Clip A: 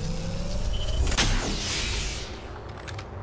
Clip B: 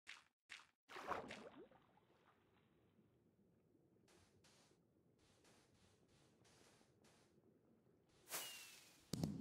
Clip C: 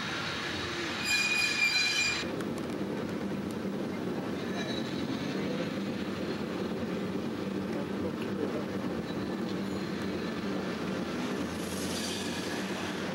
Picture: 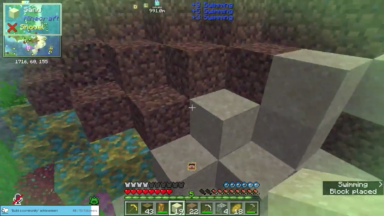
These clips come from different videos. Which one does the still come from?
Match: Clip B